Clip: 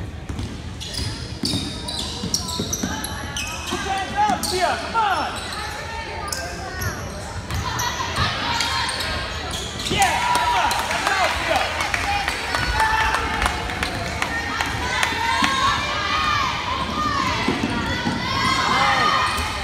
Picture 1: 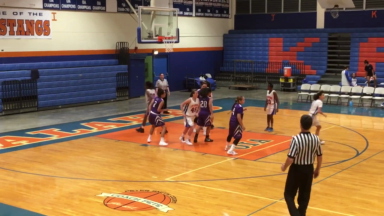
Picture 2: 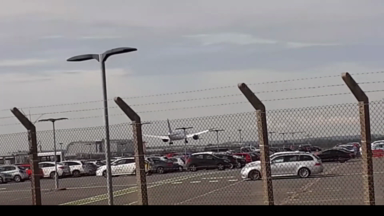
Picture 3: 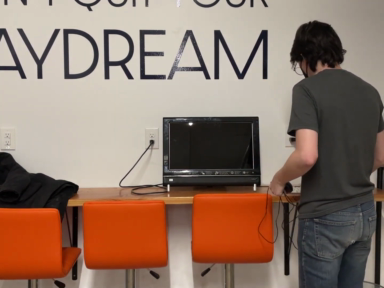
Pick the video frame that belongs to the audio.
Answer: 1